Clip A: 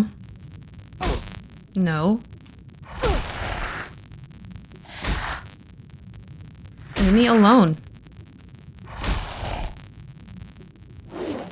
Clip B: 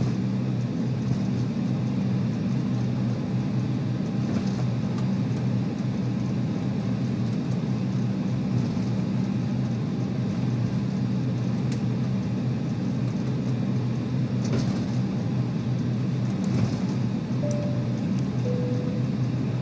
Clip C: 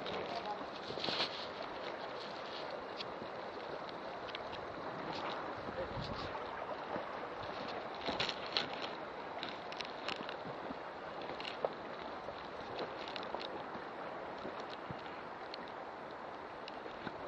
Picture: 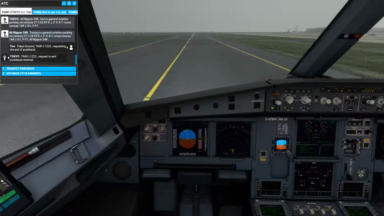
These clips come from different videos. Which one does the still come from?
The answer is B